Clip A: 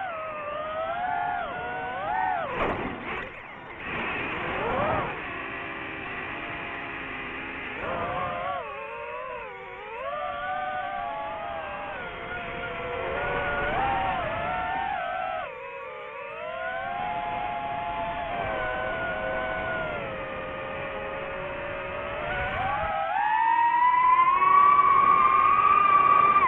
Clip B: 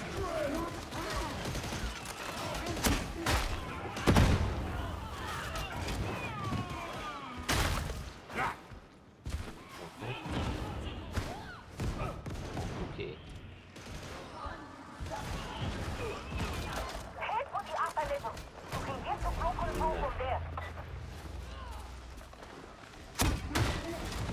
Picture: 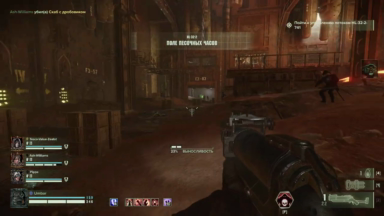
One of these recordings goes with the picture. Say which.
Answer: B